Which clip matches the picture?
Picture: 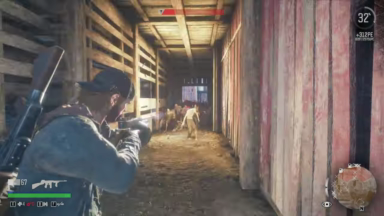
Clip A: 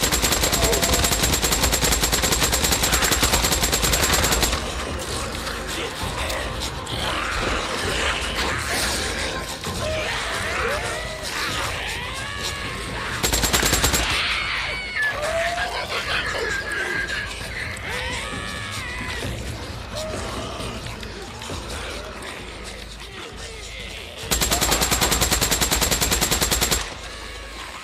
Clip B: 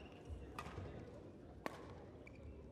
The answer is A